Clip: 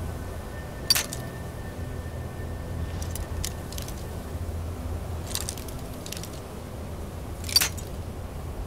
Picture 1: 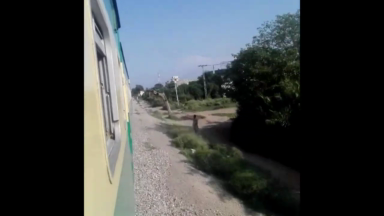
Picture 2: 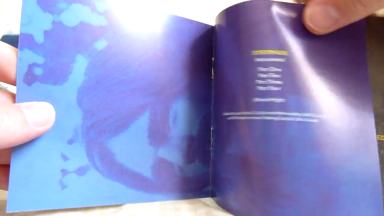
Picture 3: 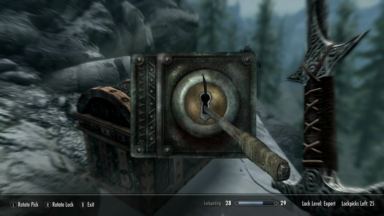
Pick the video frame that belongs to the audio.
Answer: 3